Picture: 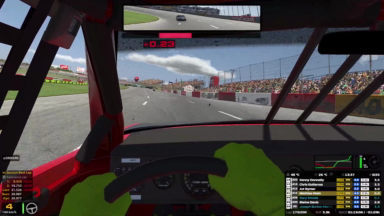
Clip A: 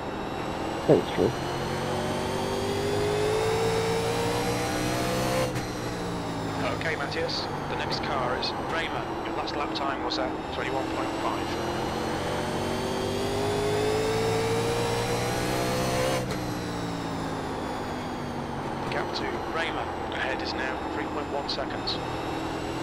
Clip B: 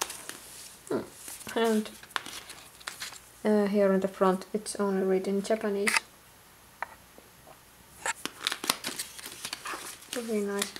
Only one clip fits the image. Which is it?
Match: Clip A